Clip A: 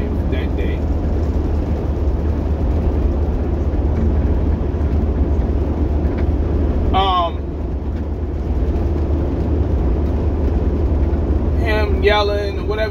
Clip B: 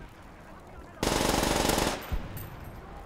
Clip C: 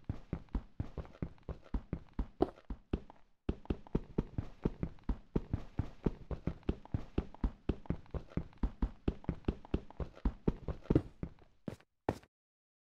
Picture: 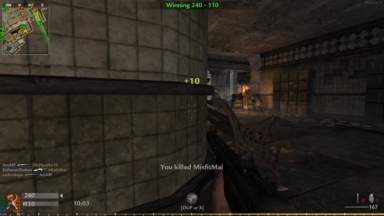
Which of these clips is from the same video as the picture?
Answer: B